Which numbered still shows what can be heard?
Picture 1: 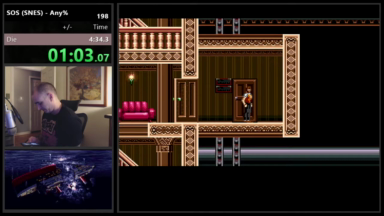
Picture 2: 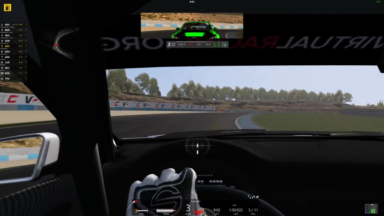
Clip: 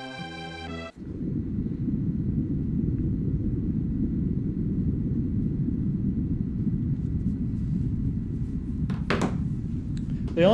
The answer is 1